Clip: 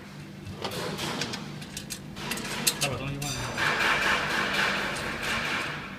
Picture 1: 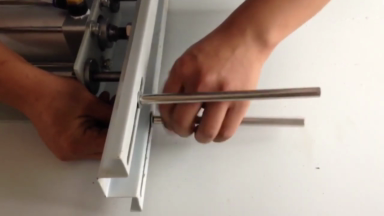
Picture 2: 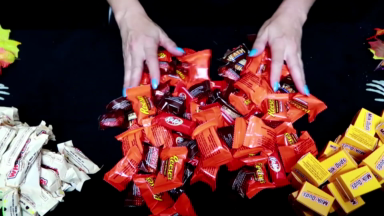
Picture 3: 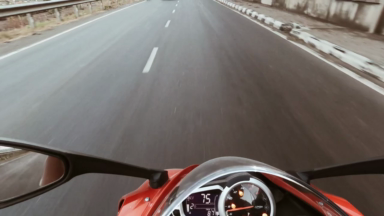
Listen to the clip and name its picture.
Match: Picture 1